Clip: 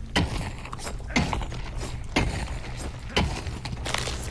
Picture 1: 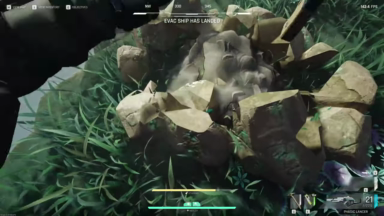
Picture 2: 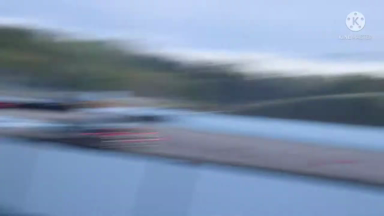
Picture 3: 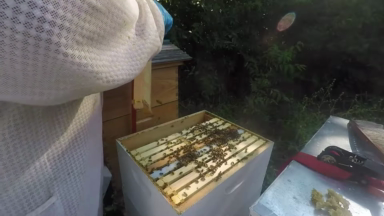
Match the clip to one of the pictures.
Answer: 1